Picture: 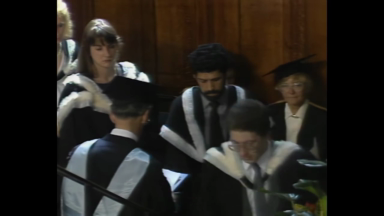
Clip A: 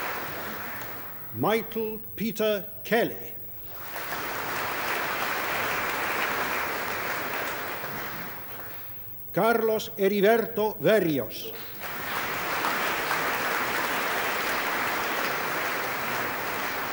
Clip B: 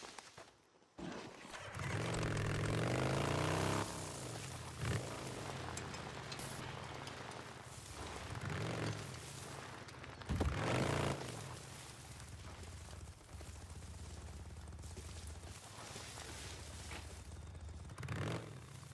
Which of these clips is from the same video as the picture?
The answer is A